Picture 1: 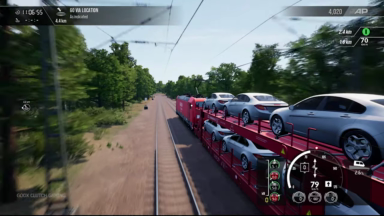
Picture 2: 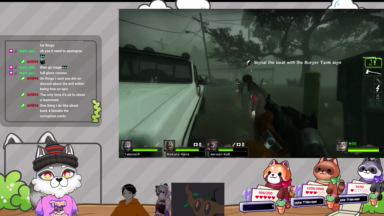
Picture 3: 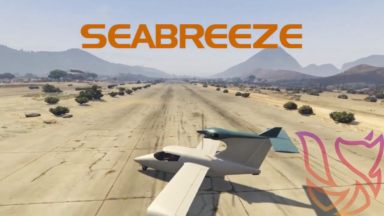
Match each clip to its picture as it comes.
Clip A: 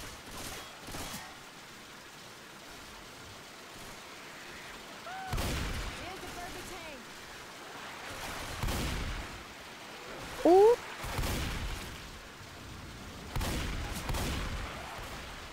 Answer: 2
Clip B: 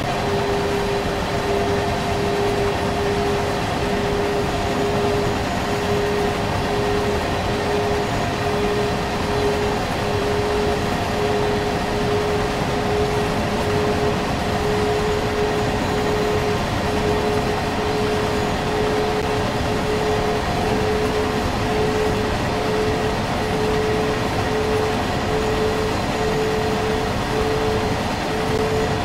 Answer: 1